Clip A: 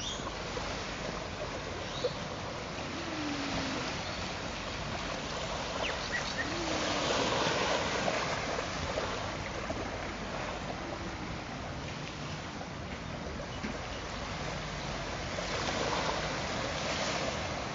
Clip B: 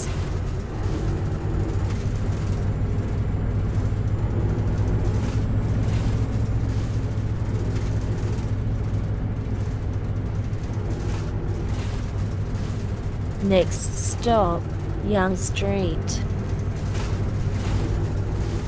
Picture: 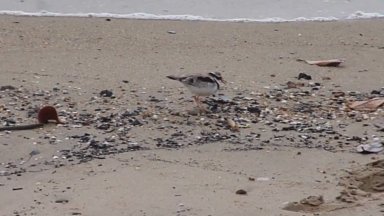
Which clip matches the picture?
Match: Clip A